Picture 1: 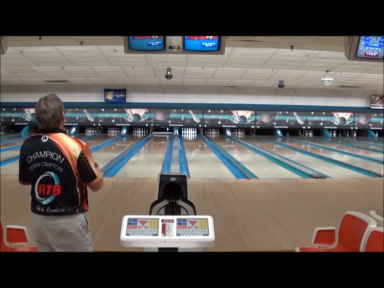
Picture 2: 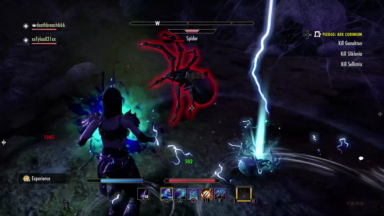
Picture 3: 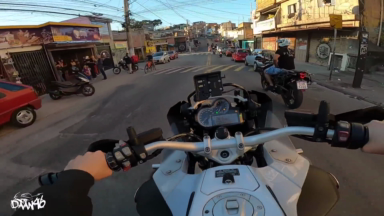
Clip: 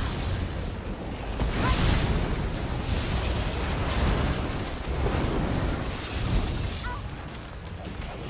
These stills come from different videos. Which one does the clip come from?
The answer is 2